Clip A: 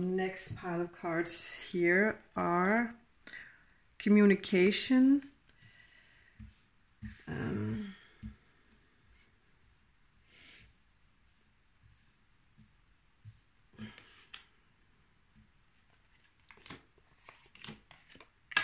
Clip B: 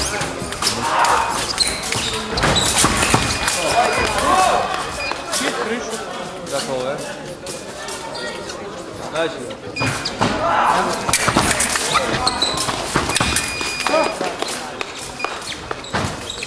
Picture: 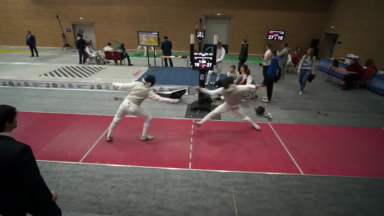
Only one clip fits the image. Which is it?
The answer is B